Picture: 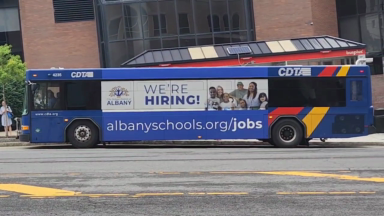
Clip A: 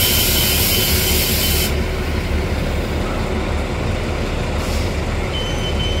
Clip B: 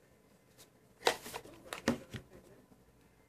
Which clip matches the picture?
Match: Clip A